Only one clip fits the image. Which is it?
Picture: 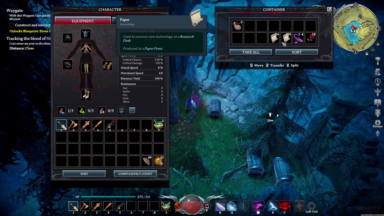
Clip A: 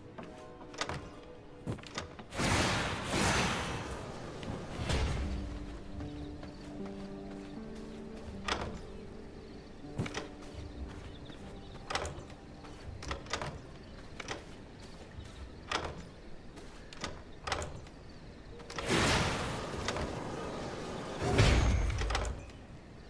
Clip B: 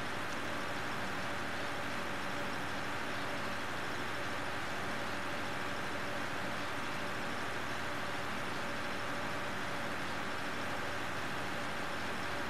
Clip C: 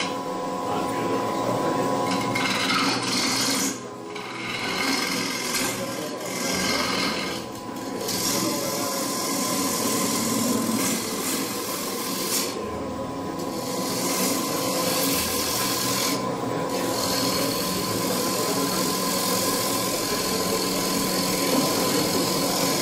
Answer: A